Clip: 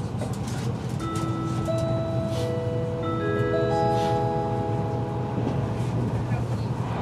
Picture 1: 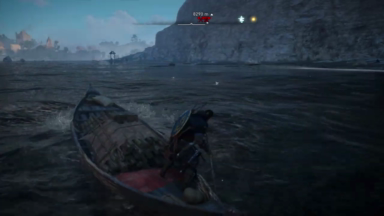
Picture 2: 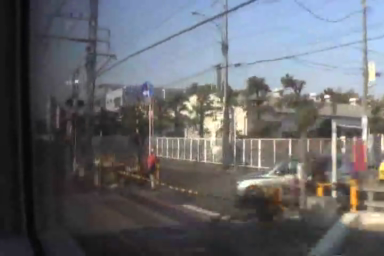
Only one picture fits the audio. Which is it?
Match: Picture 2